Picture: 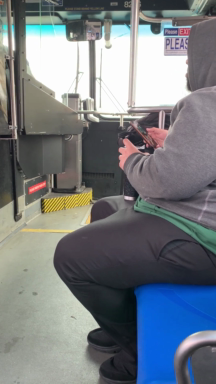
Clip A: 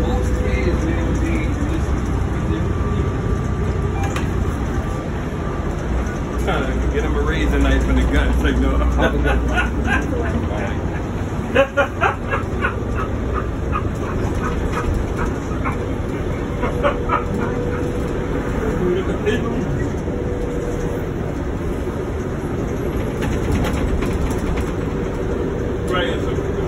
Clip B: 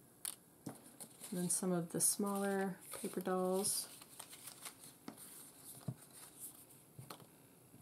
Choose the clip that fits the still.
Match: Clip A